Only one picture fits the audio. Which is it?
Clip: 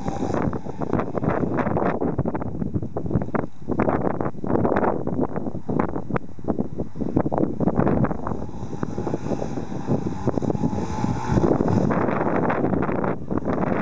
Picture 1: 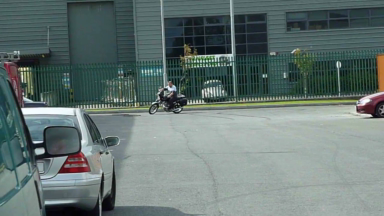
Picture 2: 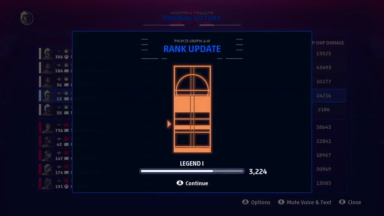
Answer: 1